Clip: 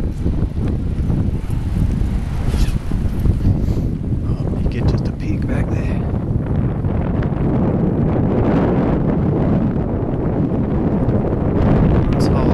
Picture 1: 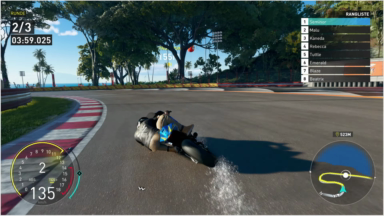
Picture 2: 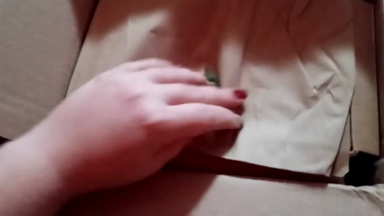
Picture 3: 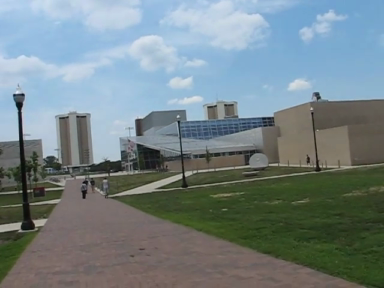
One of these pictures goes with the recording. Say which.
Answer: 3